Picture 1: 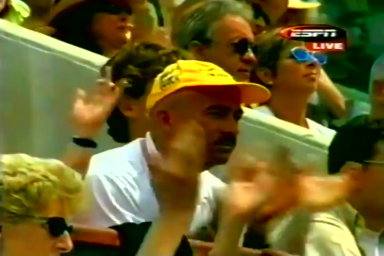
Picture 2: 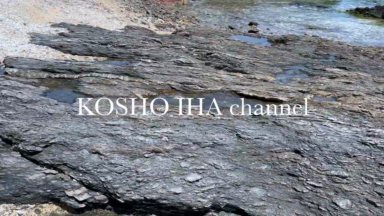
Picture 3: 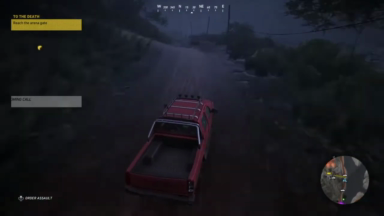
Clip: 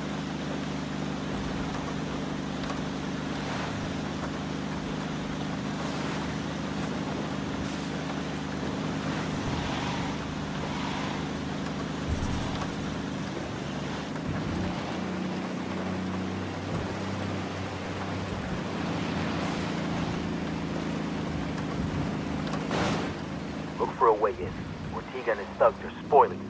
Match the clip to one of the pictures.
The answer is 3